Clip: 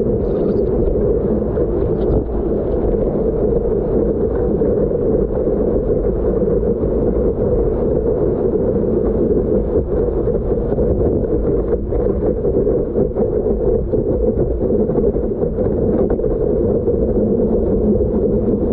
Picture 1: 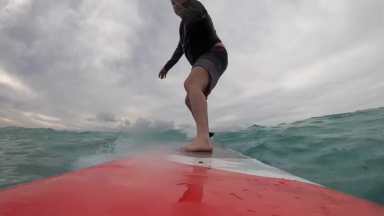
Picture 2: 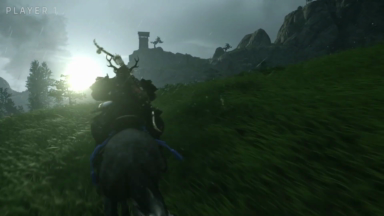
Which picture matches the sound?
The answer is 1